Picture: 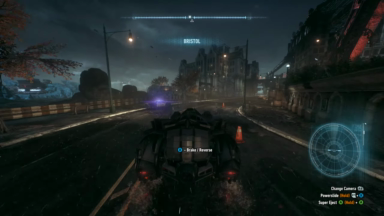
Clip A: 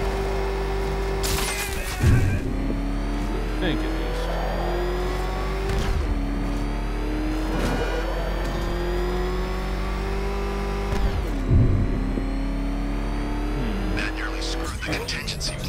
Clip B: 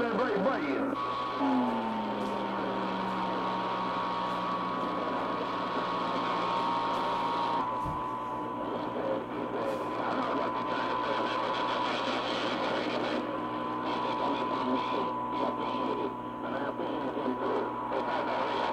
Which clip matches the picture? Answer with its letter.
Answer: A